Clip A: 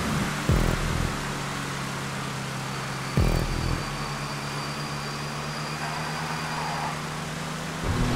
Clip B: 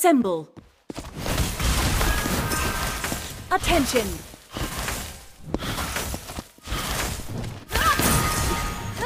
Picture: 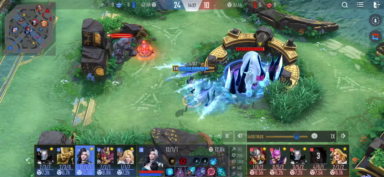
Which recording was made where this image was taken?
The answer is B